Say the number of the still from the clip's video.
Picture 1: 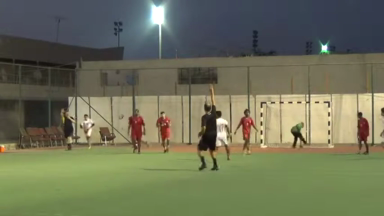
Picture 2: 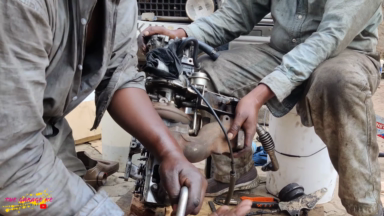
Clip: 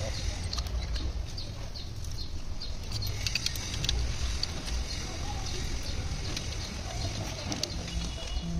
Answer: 2